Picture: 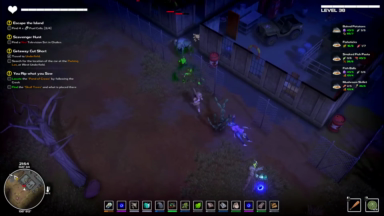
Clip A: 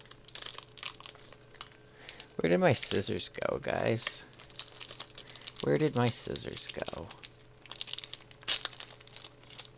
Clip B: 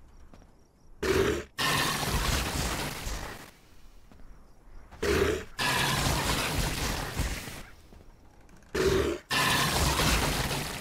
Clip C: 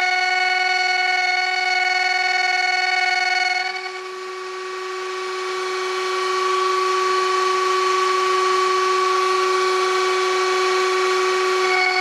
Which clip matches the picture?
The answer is B